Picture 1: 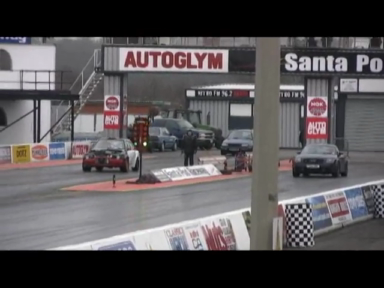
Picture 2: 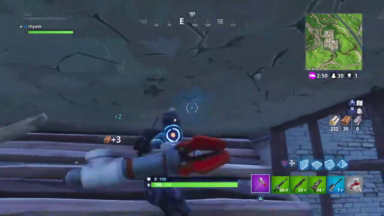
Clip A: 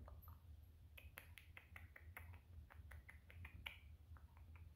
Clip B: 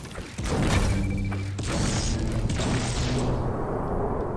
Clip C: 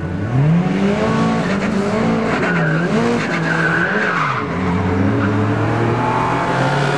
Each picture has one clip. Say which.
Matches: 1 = C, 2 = B